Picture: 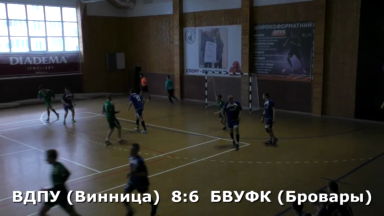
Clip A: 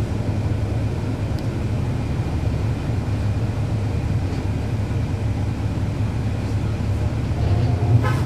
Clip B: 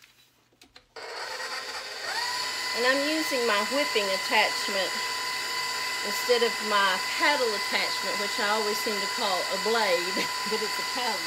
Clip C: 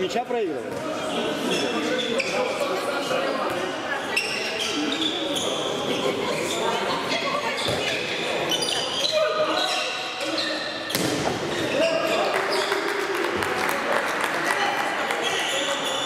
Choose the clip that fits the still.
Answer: C